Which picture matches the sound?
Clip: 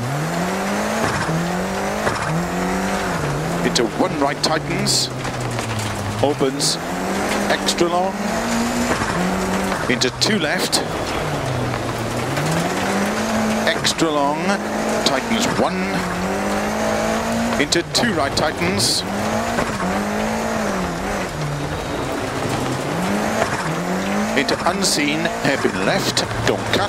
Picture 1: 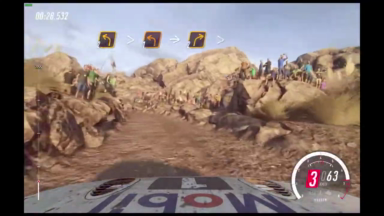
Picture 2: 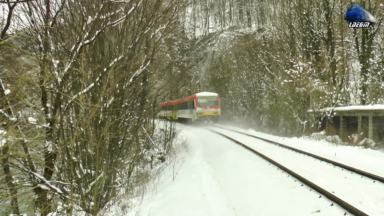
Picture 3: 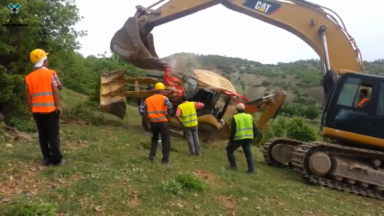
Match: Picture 1